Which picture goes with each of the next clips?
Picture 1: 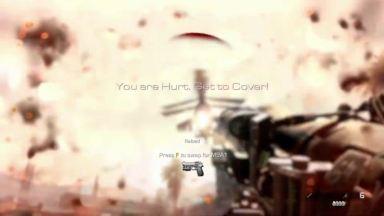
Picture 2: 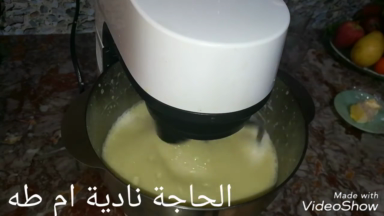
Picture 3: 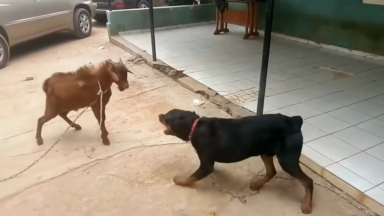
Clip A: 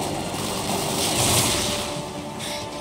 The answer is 1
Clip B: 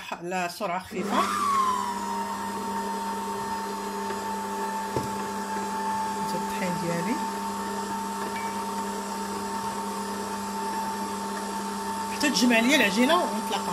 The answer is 2